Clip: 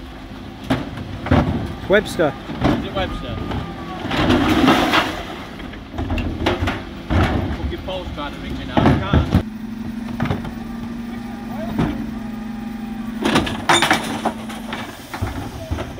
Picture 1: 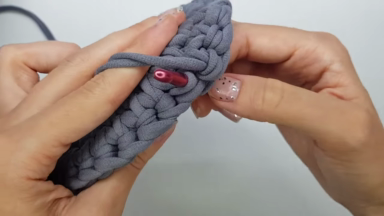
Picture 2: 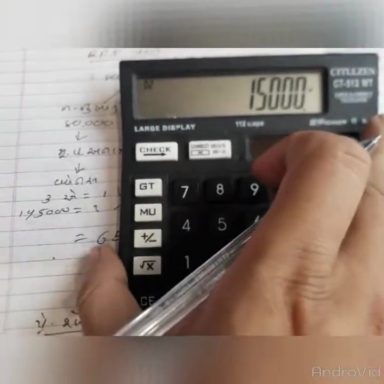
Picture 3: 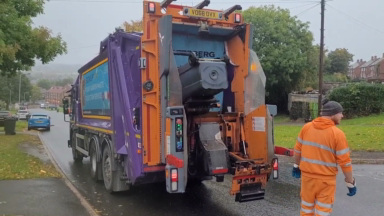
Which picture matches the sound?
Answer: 3